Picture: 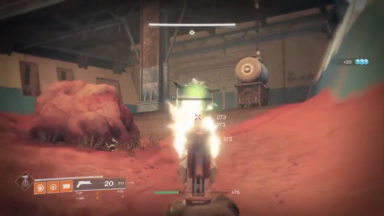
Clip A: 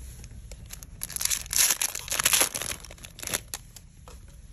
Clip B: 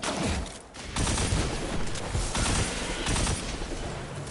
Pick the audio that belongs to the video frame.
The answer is B